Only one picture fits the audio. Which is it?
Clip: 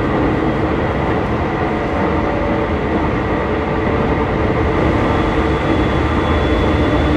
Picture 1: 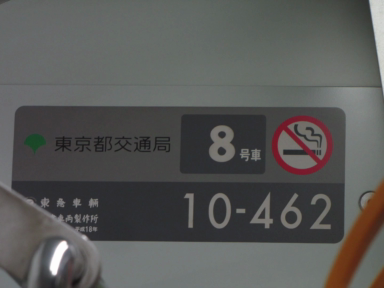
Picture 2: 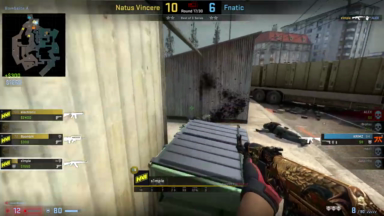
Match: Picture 1